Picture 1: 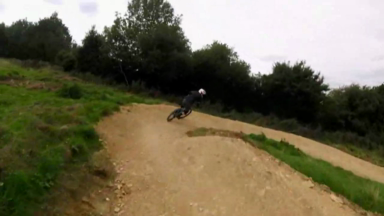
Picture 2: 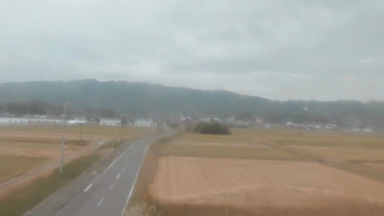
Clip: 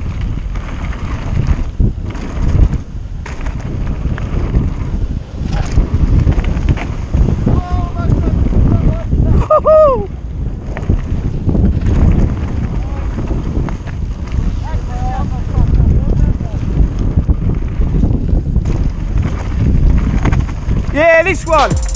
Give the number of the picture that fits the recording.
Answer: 1